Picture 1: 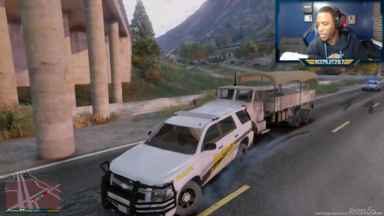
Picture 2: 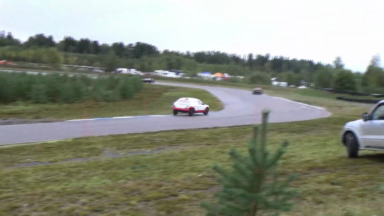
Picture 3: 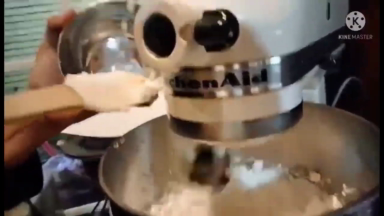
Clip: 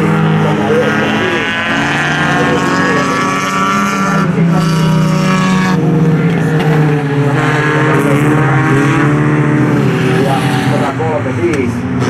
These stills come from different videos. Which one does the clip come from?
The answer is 2